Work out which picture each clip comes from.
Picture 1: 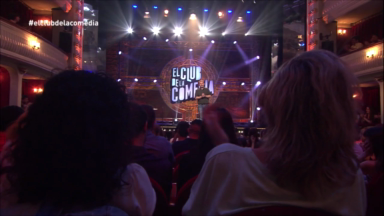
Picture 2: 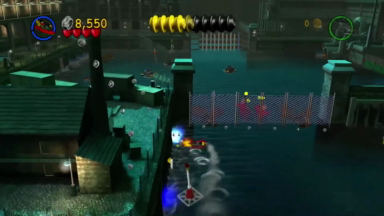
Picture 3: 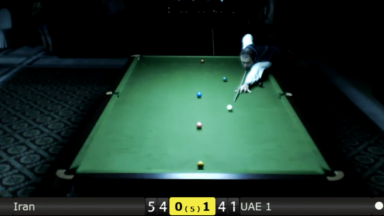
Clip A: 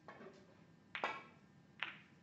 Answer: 3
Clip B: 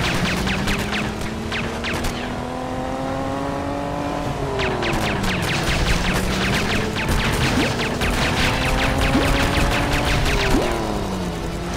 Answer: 2